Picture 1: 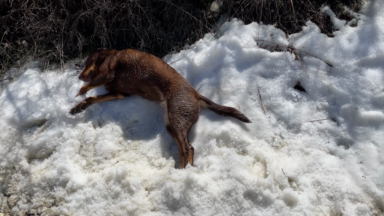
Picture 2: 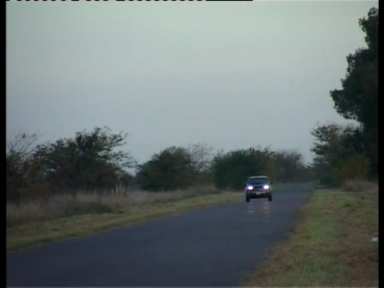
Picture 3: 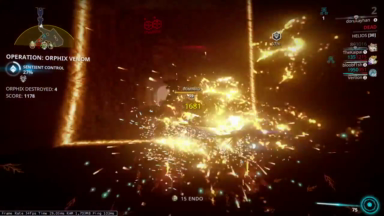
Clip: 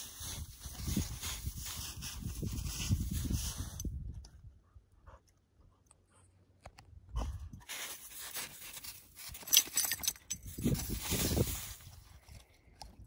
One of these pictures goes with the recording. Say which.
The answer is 1